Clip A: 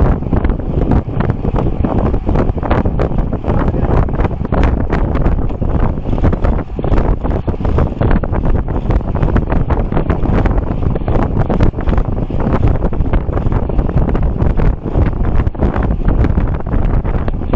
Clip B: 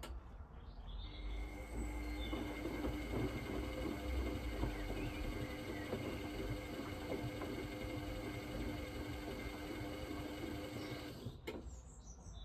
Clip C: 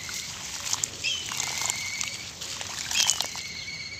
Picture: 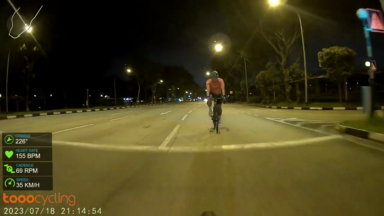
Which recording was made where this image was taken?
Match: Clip A